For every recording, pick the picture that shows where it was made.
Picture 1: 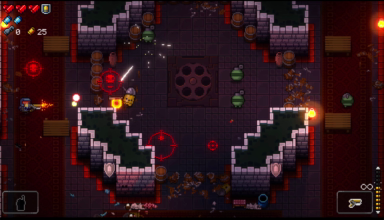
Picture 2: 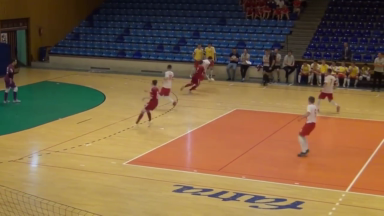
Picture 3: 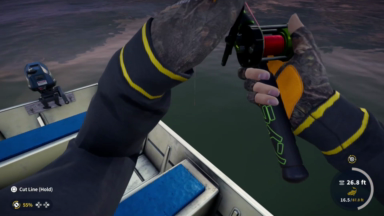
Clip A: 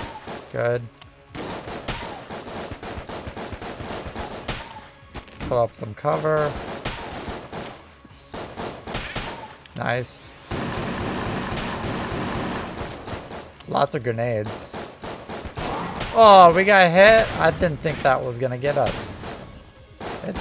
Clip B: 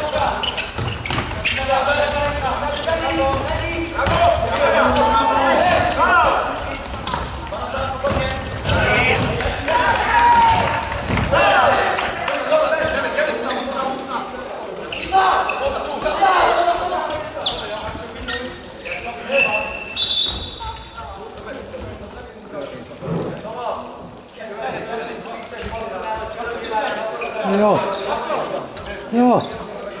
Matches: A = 1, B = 2